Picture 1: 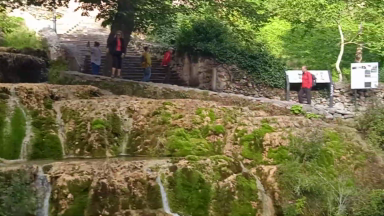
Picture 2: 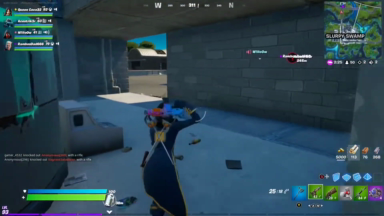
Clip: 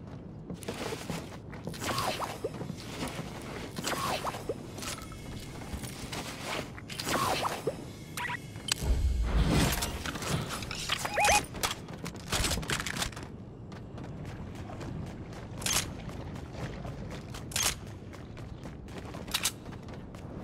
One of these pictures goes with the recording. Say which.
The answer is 2